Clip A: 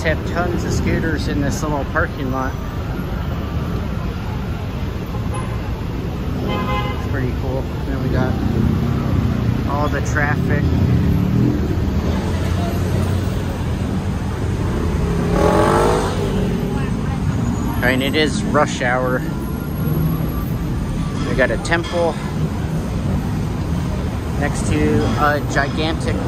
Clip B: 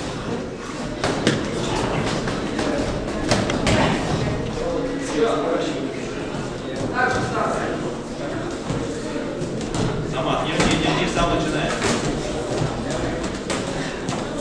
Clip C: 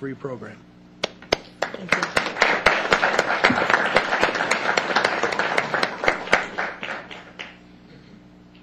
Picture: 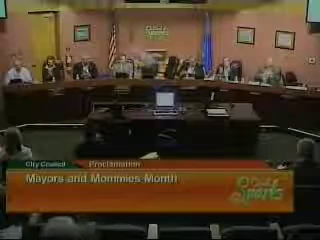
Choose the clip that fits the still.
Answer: C